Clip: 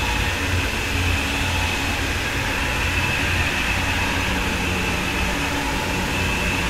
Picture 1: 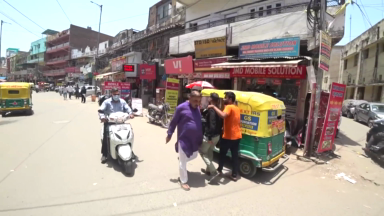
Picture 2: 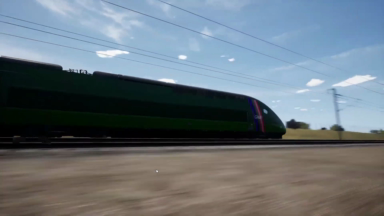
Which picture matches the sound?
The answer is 2